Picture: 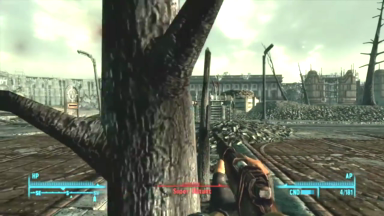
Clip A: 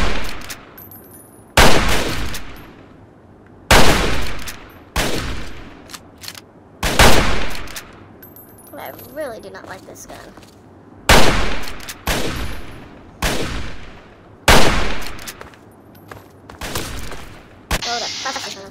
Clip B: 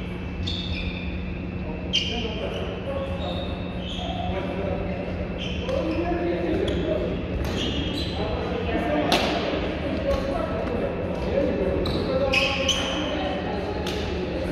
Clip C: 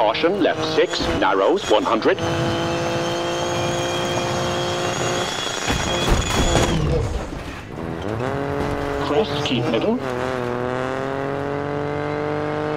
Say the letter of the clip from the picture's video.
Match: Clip A